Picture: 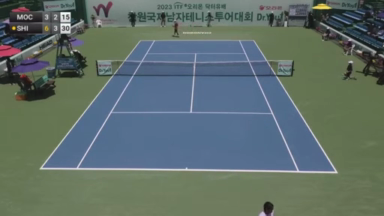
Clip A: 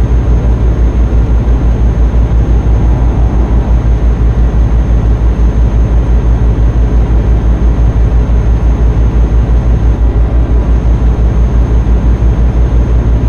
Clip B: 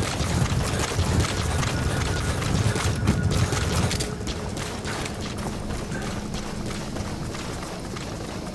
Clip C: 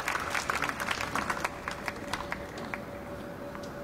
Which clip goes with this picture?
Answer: C